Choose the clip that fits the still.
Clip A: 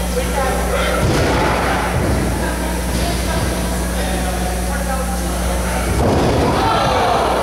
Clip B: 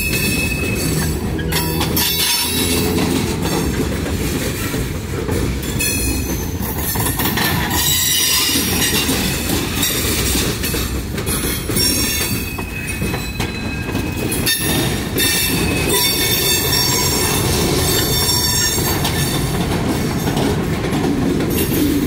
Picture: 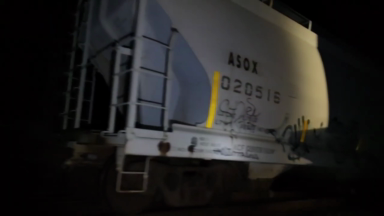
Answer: B